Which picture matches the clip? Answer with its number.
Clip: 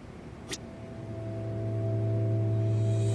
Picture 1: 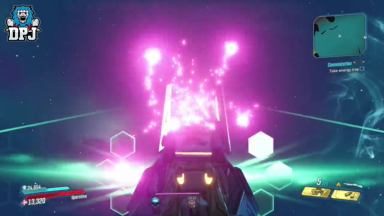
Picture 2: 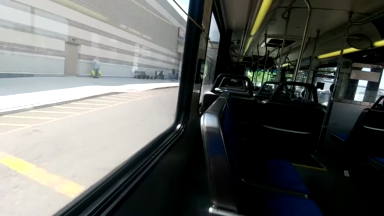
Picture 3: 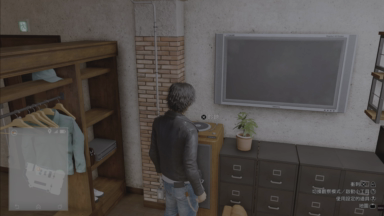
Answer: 3